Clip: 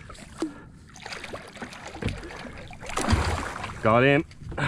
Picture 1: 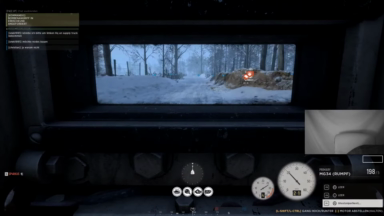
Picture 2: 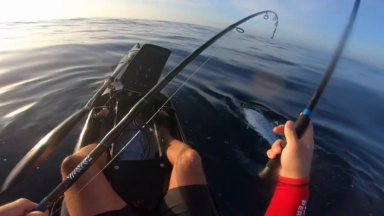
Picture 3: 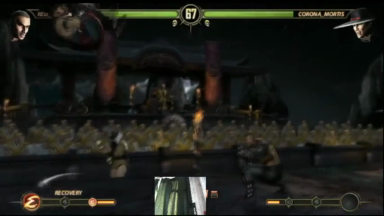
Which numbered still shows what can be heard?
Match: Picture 2